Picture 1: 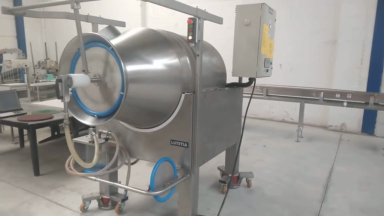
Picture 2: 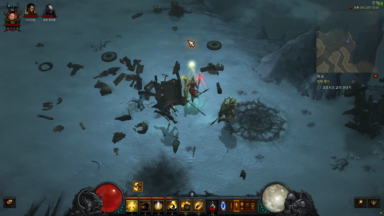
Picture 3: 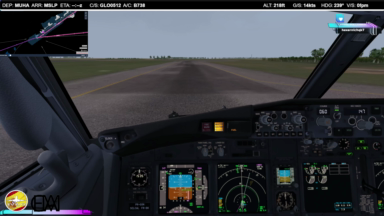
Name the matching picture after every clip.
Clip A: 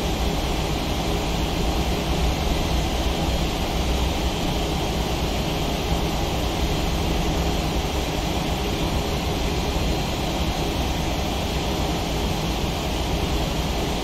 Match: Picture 3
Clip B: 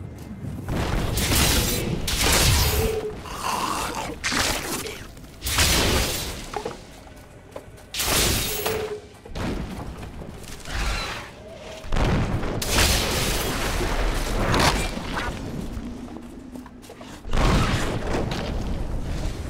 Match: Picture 2